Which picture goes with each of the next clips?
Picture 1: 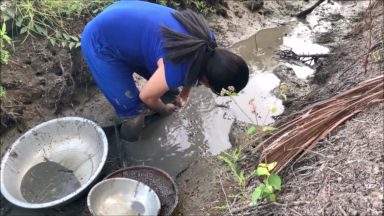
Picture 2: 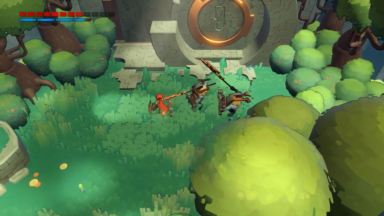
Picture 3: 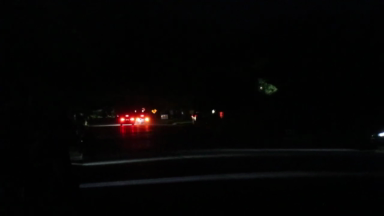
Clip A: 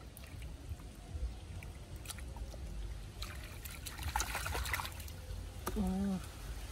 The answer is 1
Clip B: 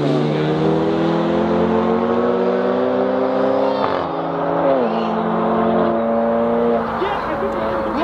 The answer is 3